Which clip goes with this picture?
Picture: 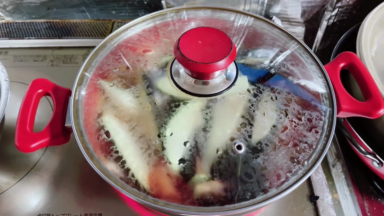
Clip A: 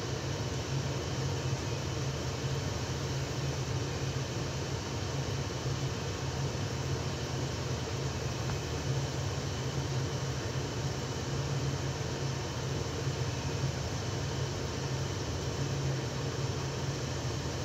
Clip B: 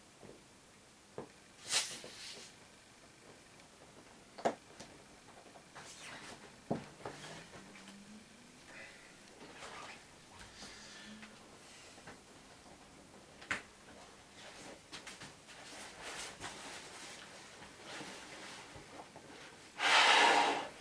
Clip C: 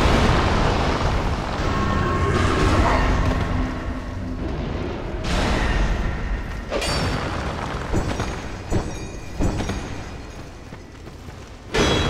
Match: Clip A